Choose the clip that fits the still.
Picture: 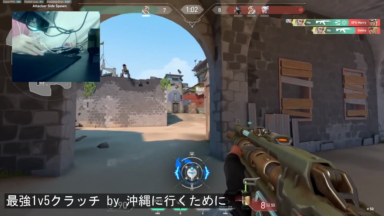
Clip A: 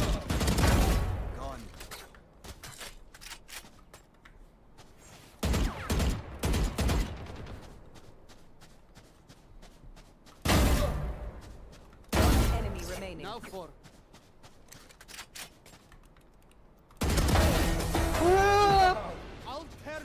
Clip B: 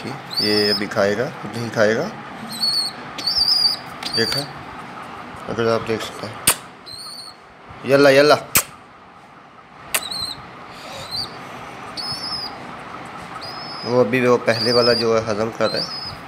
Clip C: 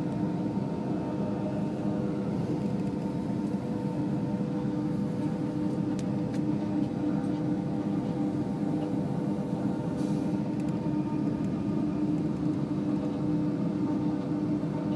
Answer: A